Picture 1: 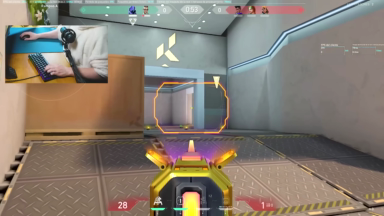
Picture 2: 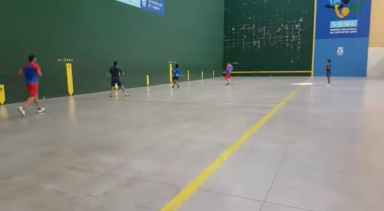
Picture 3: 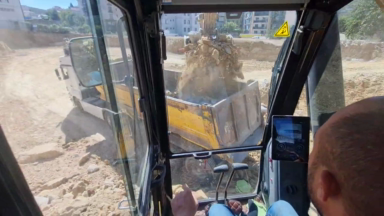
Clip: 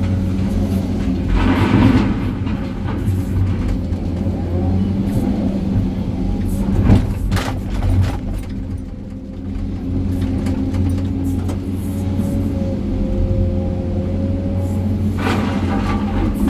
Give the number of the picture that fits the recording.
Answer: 3